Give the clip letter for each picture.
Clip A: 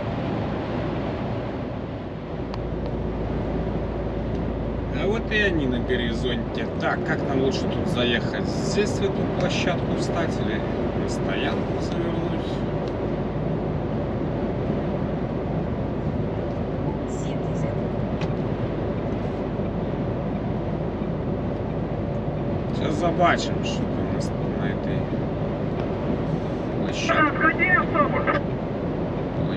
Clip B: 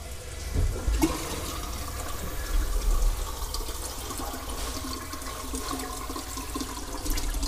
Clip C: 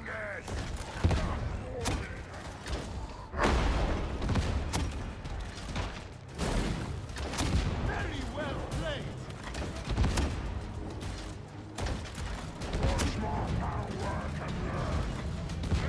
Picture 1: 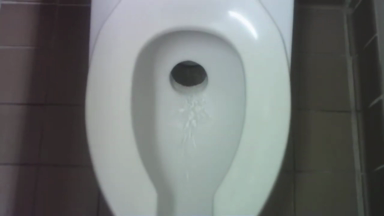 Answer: B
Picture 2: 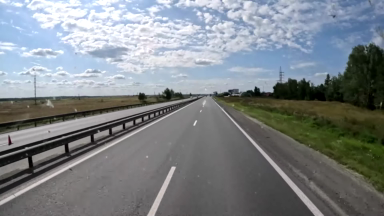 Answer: A